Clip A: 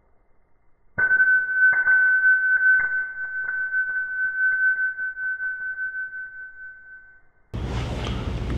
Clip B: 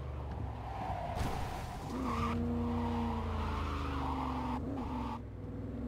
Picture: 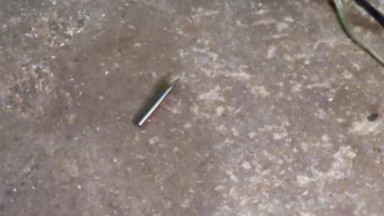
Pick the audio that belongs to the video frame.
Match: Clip A